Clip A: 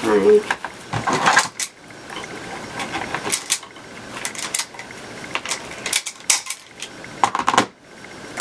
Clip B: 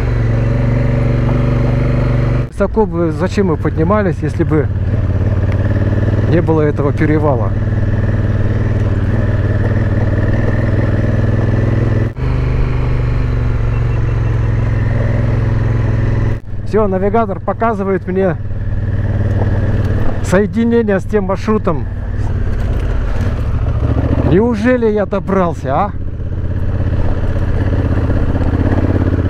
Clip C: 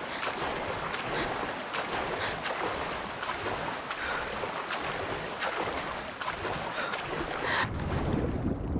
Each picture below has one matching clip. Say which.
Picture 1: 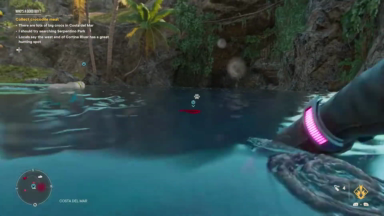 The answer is C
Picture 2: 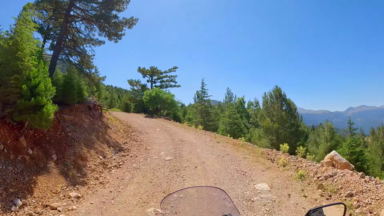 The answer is B